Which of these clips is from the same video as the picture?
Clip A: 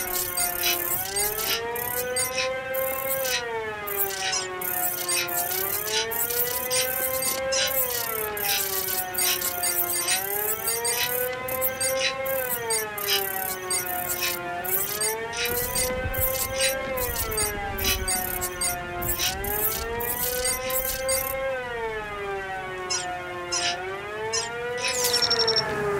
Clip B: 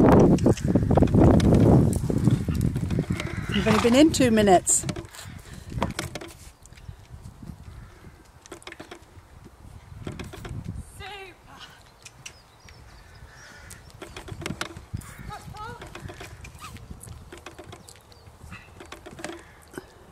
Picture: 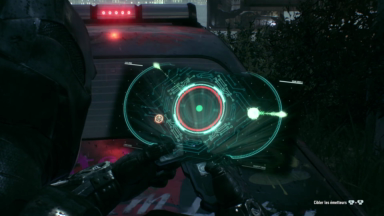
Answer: A